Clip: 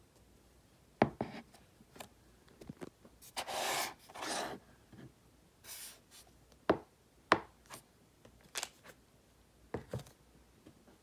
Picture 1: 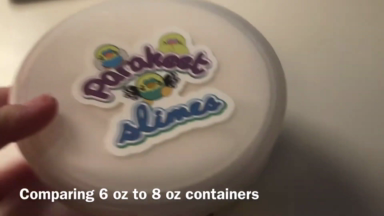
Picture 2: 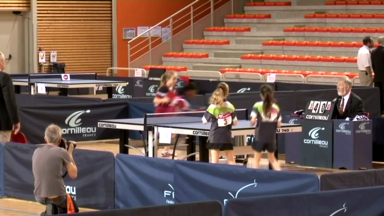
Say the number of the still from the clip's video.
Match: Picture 1